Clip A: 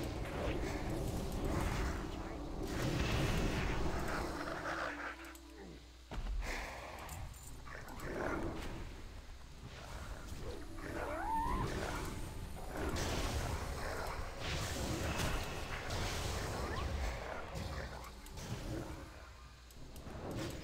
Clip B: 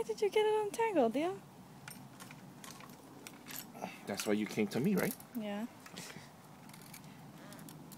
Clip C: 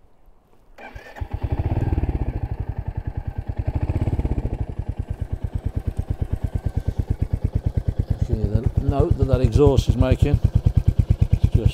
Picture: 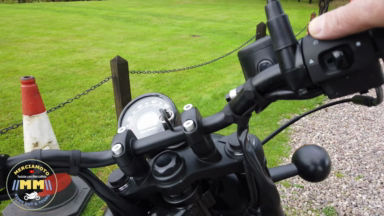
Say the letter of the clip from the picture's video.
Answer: C